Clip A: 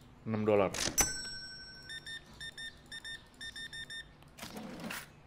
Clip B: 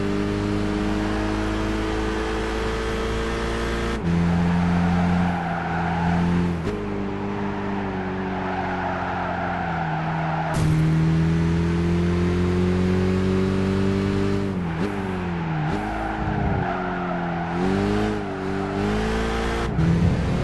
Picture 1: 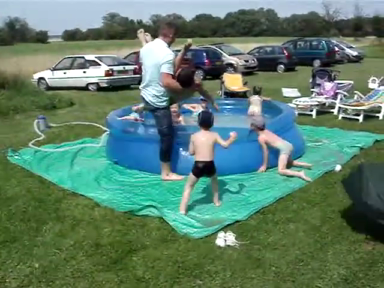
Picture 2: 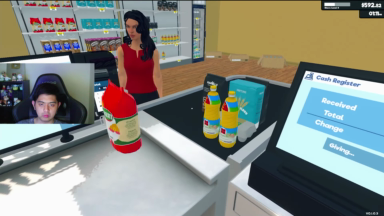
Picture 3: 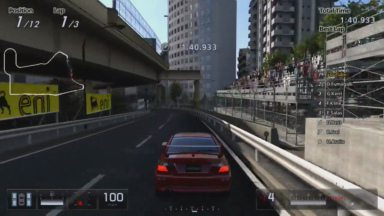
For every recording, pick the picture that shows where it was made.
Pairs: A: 2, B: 3